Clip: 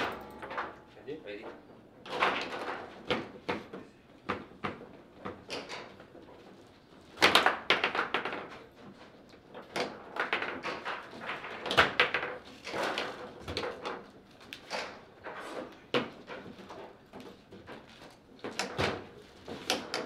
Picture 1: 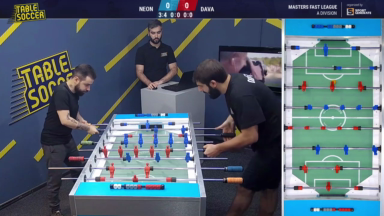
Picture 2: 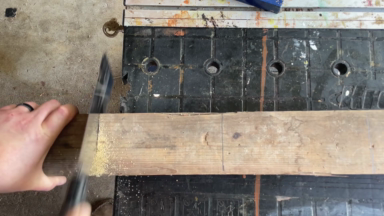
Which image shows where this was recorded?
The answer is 1